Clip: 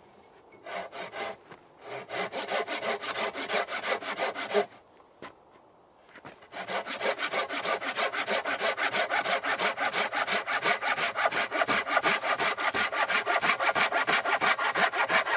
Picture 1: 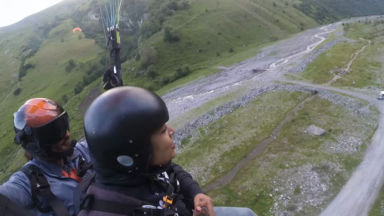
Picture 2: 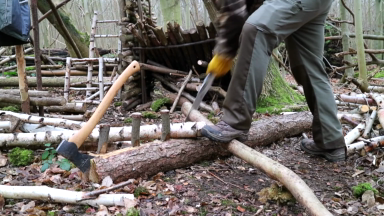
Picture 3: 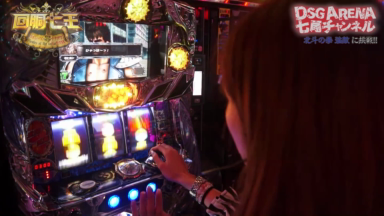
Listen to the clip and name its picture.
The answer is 2